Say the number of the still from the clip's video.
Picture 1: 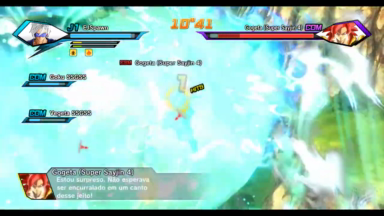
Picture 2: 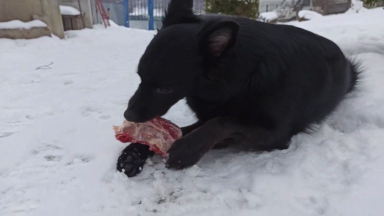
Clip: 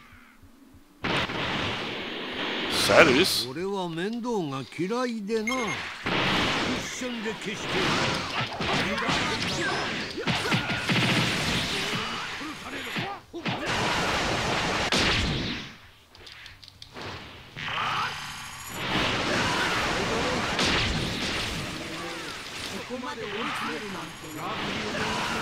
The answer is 1